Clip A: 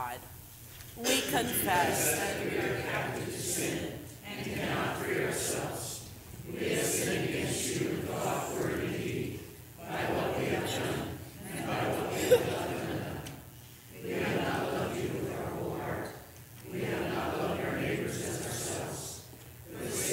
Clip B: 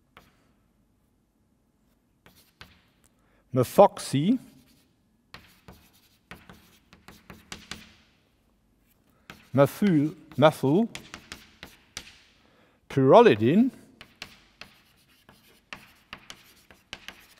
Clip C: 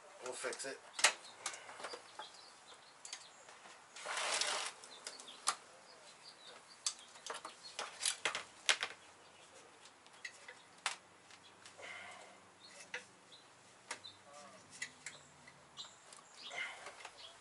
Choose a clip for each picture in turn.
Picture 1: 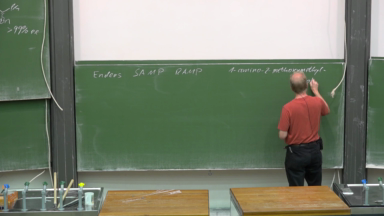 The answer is B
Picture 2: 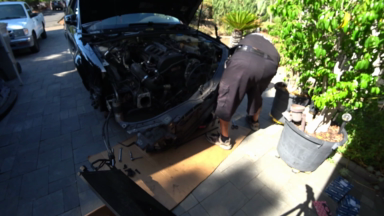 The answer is C